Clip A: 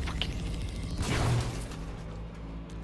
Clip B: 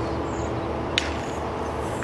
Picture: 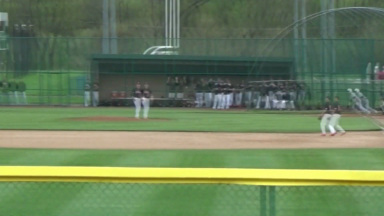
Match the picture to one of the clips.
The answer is B